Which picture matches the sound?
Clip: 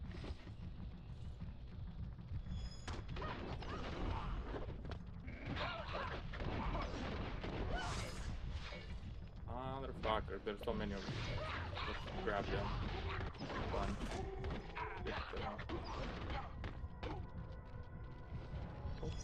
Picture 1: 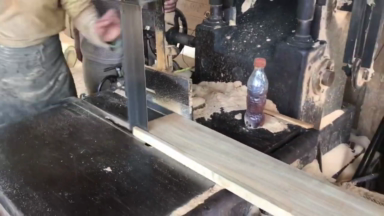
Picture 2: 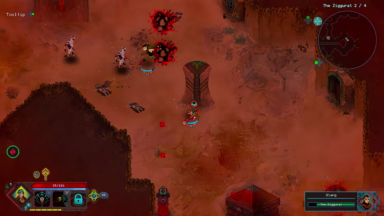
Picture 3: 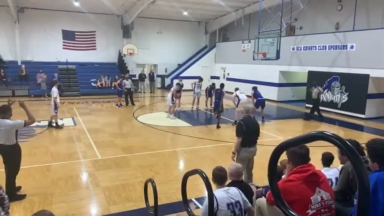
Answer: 2